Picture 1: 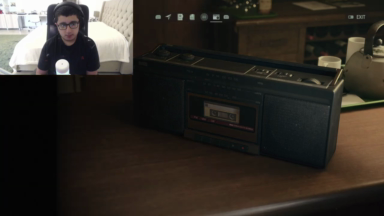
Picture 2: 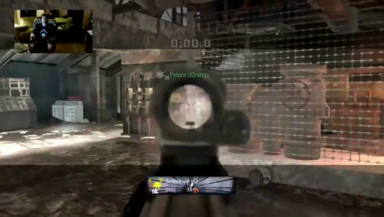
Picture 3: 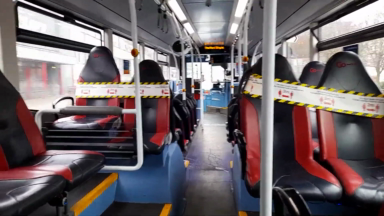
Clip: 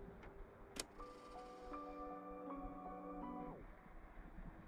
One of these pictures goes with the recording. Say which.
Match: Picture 1